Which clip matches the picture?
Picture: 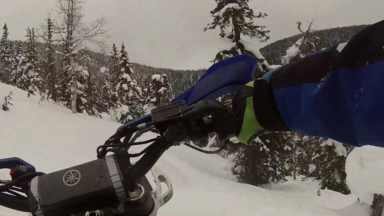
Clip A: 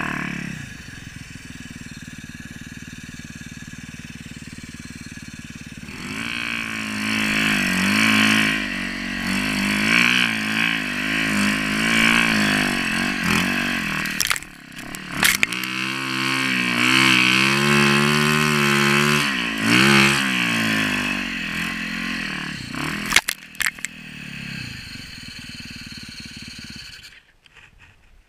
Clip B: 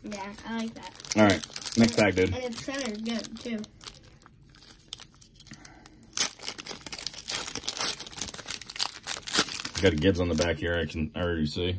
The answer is A